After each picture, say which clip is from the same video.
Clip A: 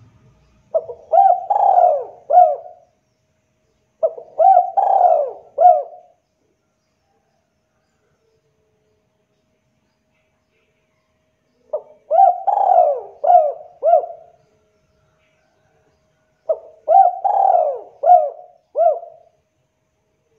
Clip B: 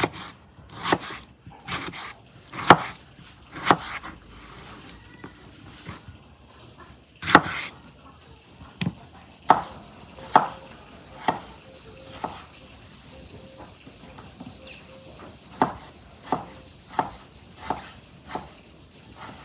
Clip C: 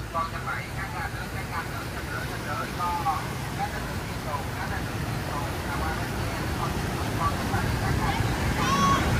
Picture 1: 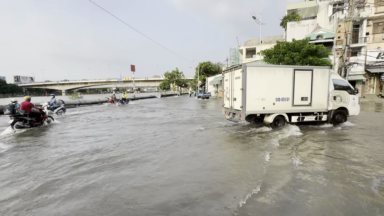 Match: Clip C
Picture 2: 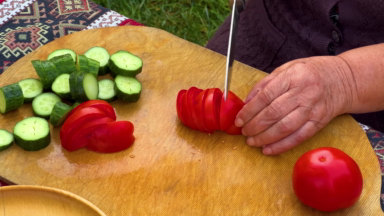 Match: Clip B